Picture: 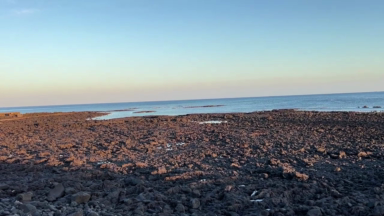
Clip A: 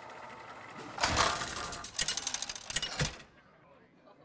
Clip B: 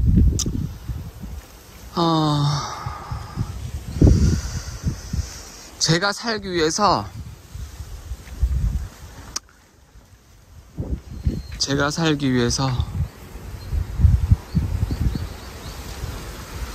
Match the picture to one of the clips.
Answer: B